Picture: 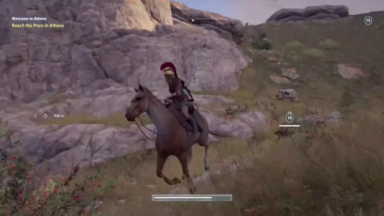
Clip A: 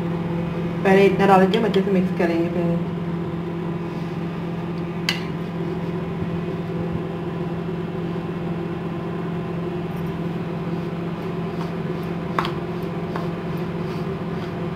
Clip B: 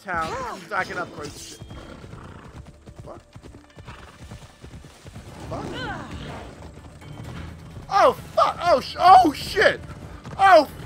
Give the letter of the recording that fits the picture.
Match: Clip B